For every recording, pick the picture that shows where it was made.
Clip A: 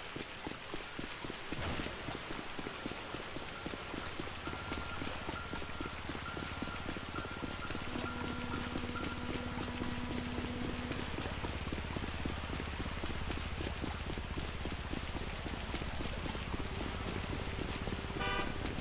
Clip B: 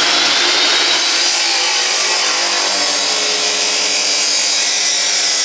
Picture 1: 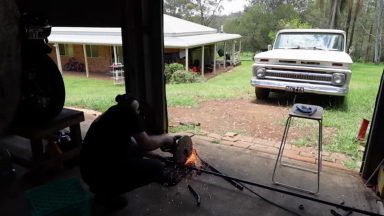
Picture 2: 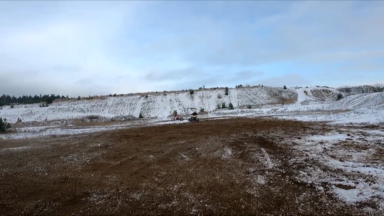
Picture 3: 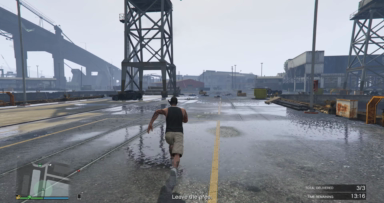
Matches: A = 3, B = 1